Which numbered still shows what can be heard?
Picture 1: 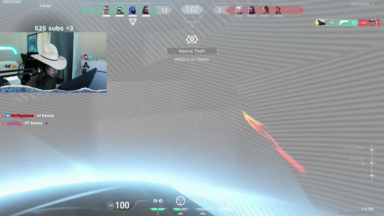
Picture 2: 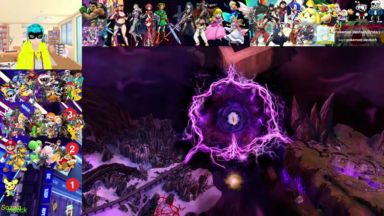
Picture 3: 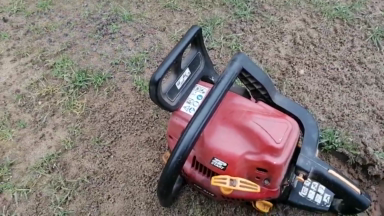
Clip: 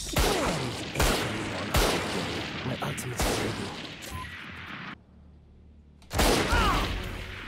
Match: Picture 1